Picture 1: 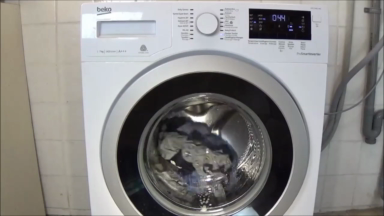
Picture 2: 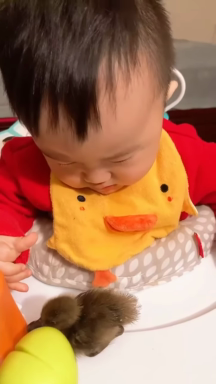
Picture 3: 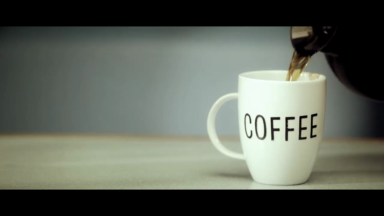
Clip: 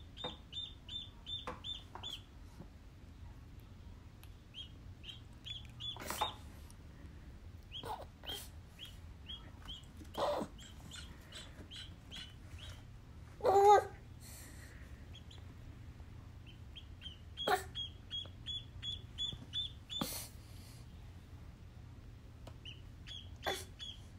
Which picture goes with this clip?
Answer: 2